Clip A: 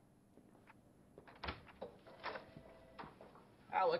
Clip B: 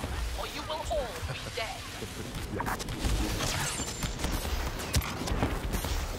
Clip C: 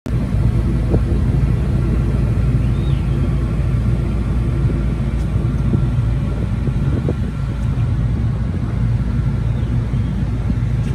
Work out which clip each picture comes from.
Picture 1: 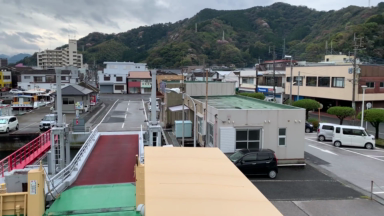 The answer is C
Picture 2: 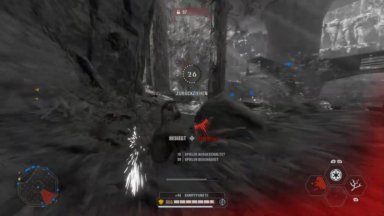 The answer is B